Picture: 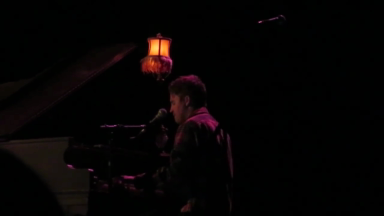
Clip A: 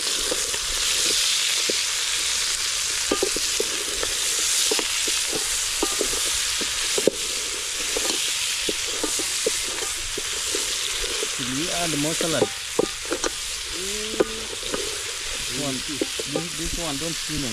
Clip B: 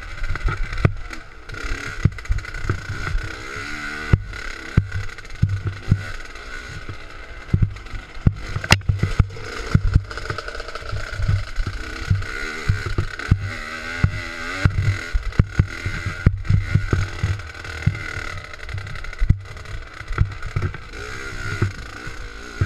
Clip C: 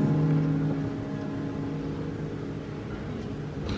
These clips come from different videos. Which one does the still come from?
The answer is C